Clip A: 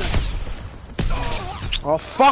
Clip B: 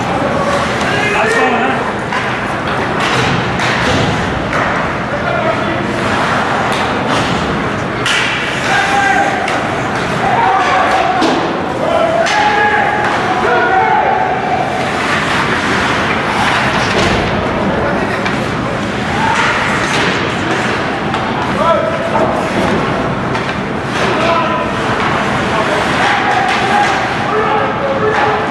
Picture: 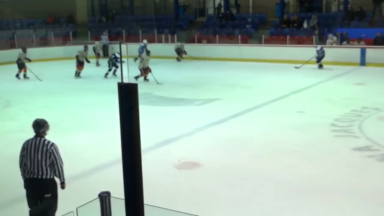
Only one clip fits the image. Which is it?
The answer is B